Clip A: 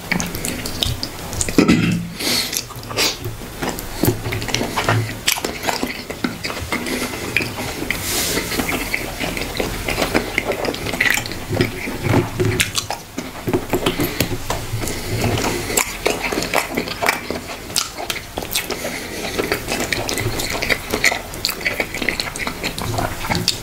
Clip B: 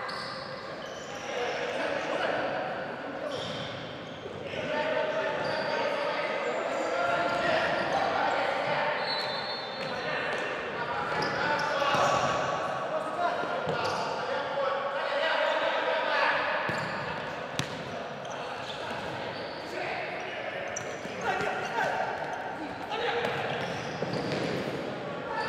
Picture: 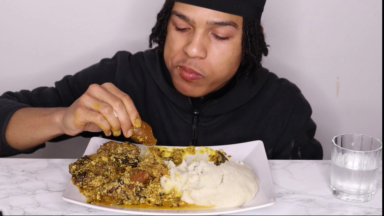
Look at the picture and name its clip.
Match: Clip A